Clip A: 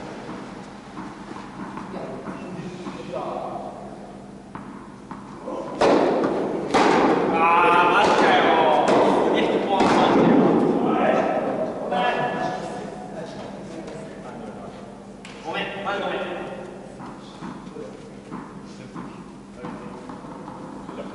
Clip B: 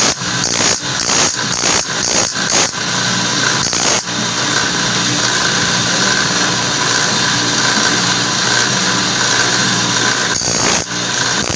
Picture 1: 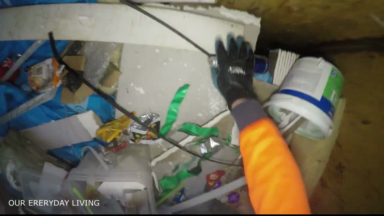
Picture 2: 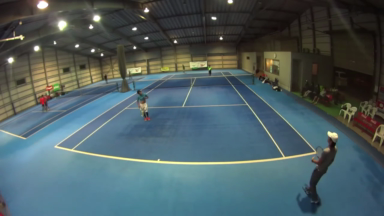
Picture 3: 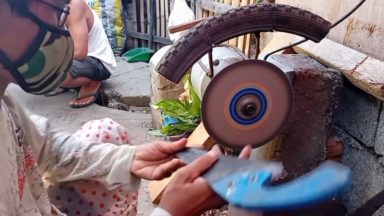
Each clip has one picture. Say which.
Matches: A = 2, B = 3